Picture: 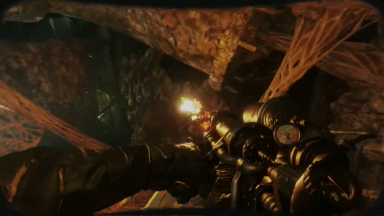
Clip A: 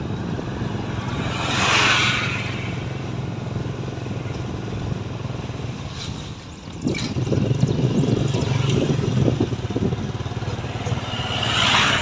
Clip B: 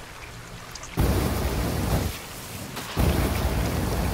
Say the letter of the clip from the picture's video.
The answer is B